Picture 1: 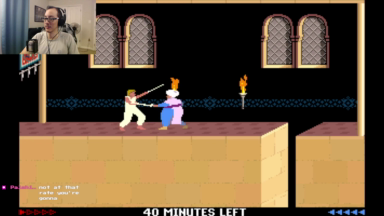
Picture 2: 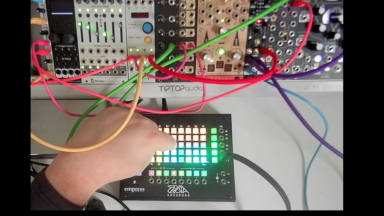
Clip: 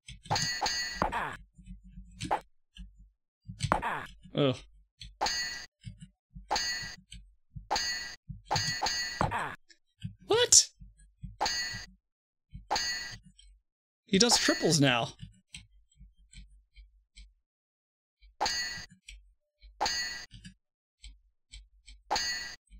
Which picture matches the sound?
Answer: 1